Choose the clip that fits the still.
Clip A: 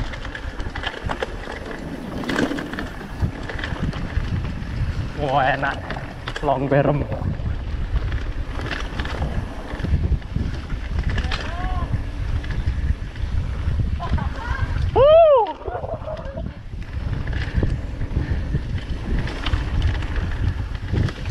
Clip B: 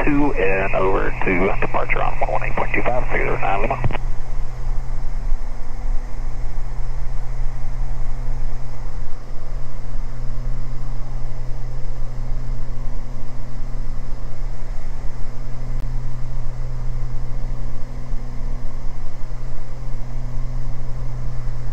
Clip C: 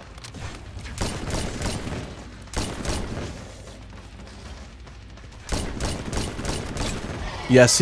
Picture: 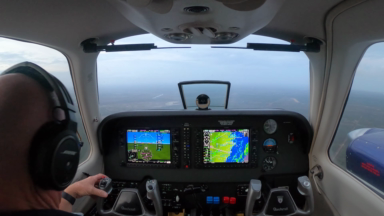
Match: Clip B